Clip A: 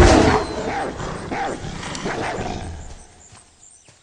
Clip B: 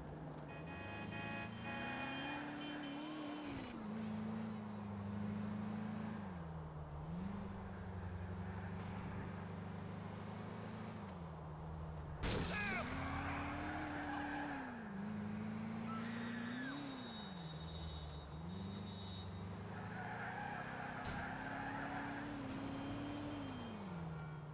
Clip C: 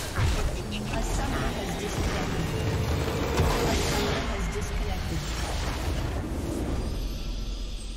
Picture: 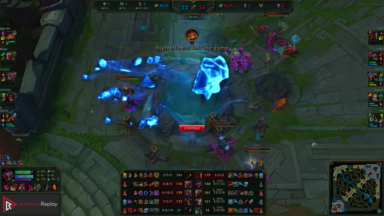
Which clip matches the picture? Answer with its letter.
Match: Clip C